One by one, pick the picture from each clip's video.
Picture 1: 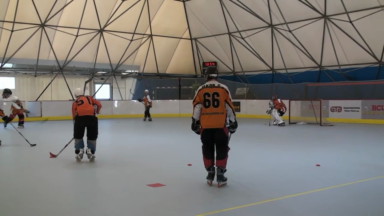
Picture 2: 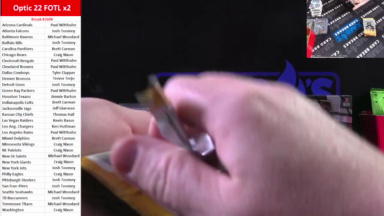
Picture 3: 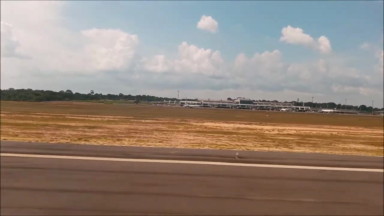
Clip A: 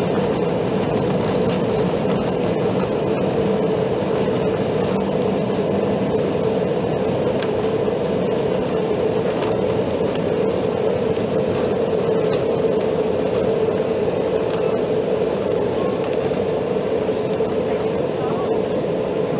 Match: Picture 3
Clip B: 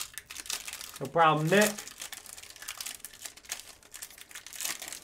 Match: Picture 2